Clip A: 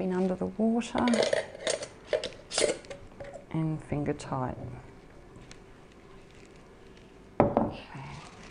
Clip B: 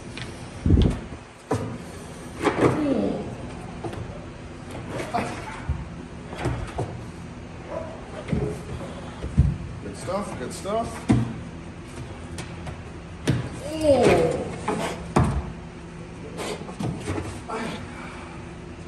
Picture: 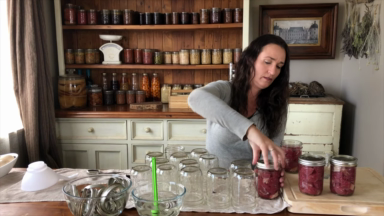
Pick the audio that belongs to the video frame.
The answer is A